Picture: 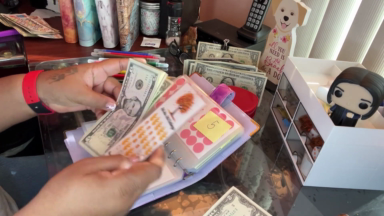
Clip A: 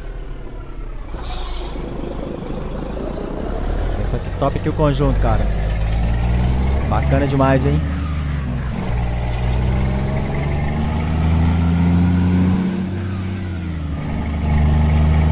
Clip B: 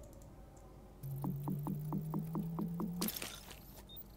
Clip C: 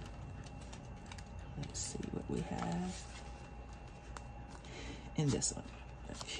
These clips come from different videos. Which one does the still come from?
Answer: C